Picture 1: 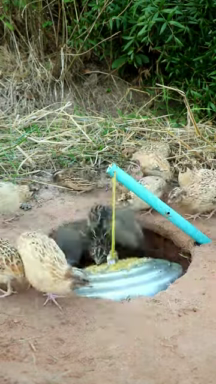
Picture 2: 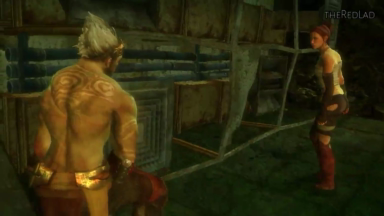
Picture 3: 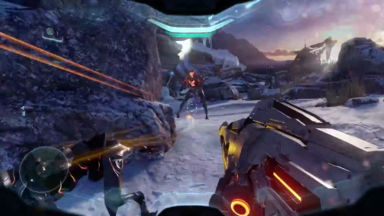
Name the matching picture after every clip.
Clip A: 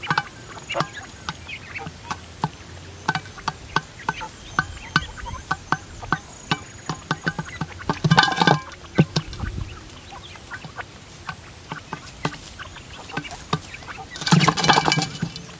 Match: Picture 1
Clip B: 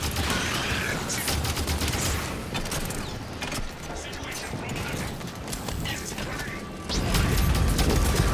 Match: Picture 3